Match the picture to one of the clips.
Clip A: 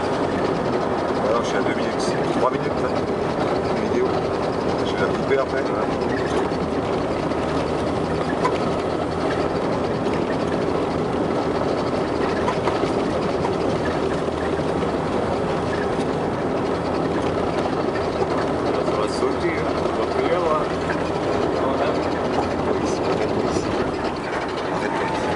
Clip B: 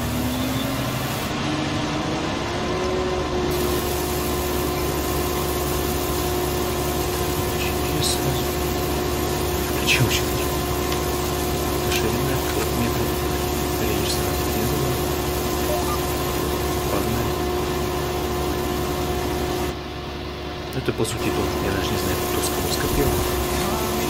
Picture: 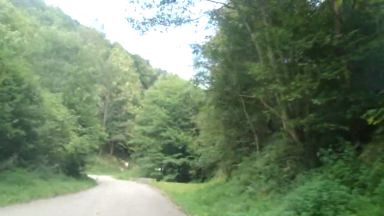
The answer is A